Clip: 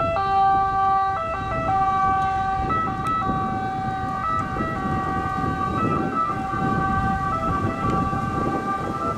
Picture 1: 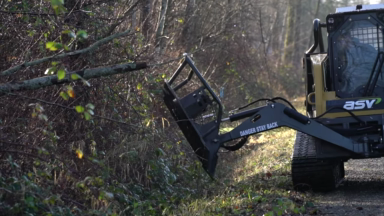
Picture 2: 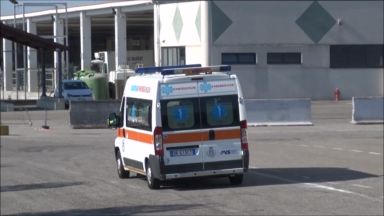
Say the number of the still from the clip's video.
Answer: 2